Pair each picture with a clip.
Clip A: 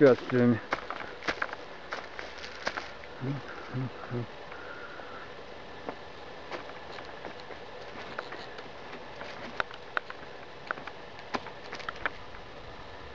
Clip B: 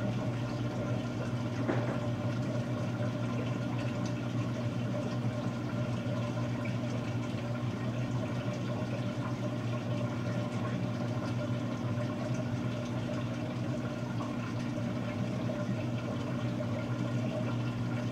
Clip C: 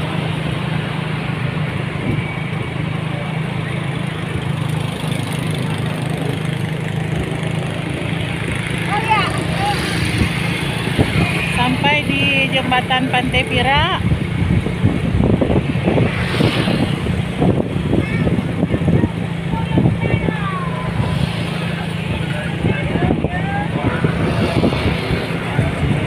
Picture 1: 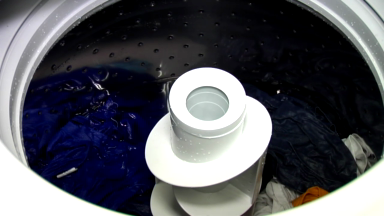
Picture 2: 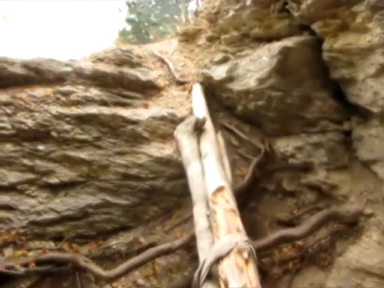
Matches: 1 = B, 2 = A